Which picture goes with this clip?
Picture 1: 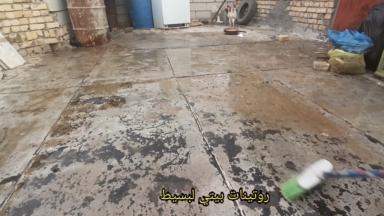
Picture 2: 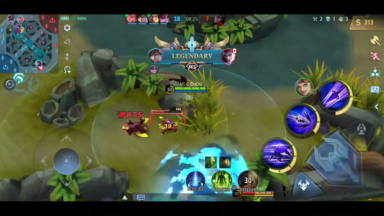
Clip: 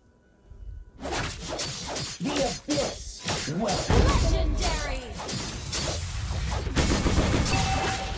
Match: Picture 2